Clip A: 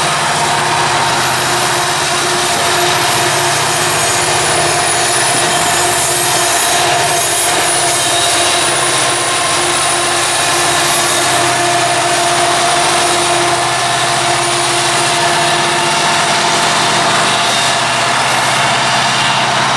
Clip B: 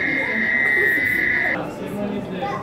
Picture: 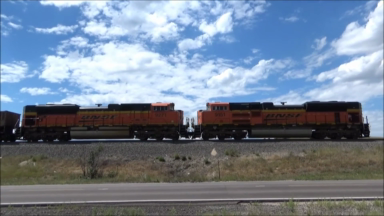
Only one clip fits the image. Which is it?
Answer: A